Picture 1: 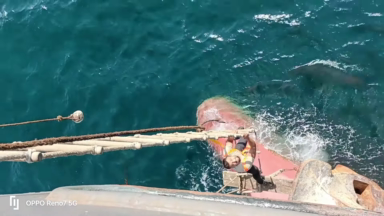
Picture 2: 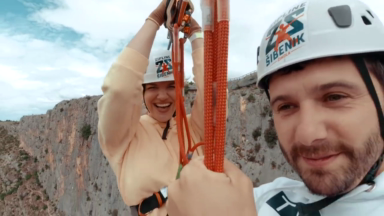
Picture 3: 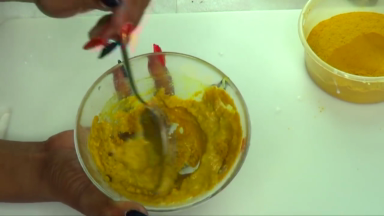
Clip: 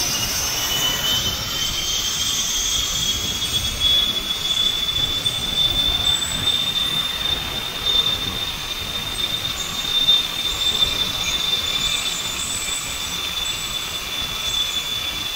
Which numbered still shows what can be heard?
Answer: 2